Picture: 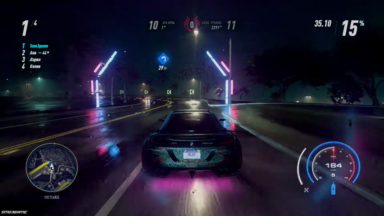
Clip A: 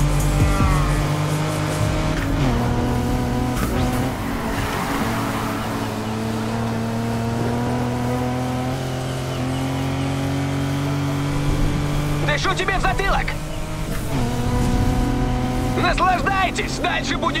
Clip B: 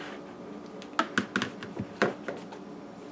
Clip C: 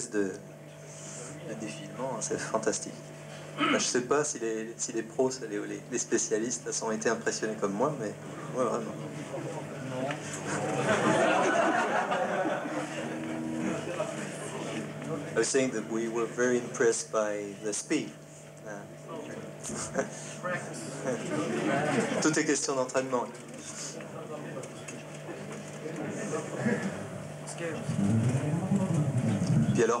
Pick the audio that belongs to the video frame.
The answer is A